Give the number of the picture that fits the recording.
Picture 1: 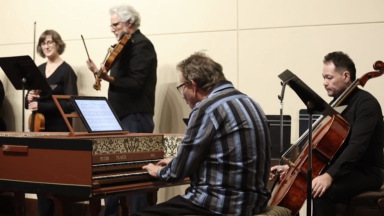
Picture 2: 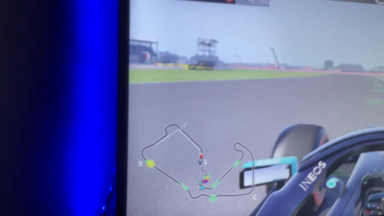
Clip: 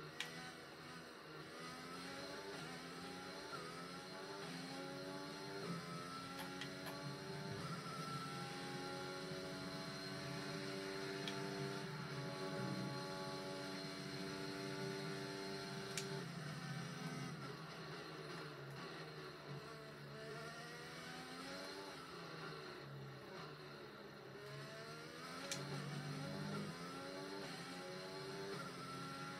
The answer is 2